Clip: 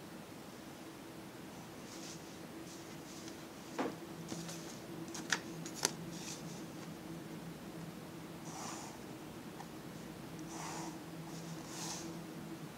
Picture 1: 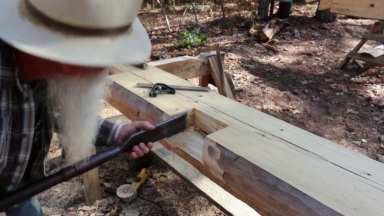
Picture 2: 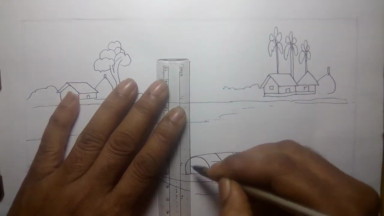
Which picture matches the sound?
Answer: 2